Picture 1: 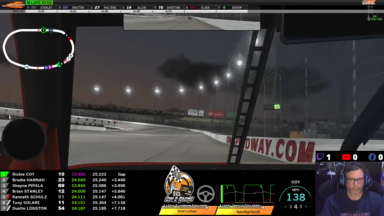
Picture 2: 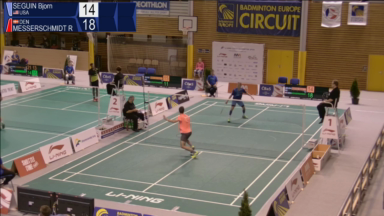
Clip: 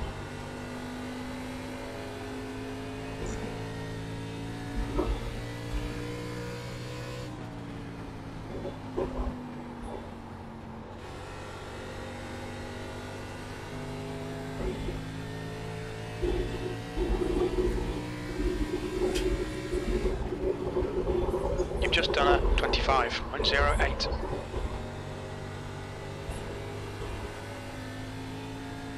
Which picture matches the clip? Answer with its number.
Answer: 1